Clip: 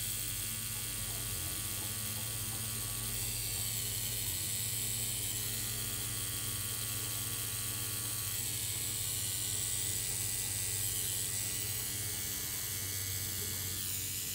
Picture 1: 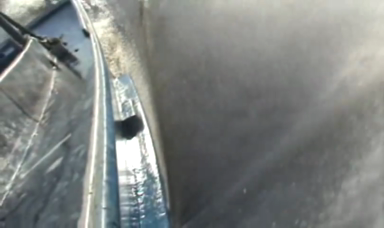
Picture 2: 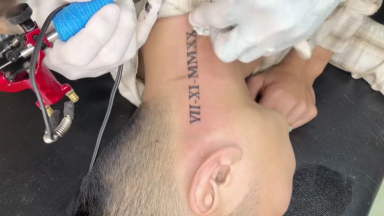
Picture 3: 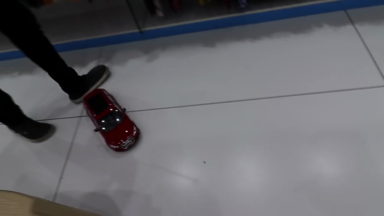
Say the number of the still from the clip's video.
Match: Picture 2